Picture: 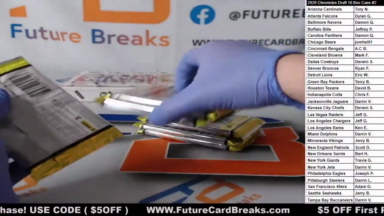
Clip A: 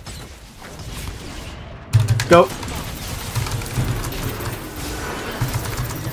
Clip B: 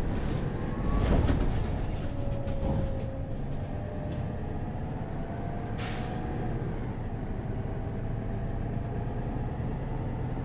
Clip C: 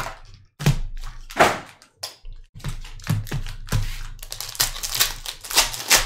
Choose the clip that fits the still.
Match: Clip C